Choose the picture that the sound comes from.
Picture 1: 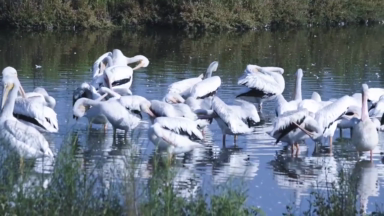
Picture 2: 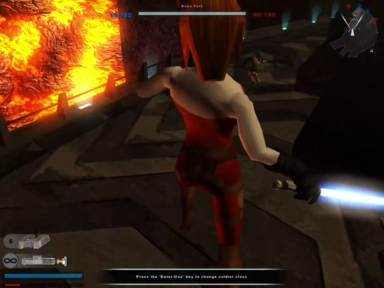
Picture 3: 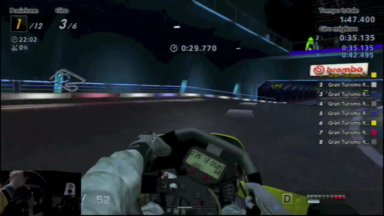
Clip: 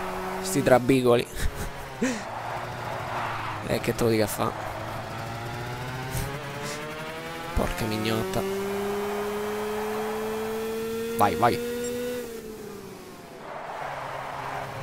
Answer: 3